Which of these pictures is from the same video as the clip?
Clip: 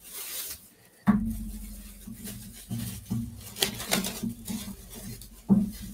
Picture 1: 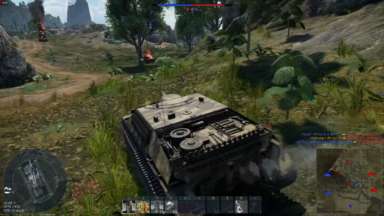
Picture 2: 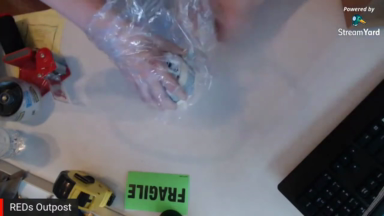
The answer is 2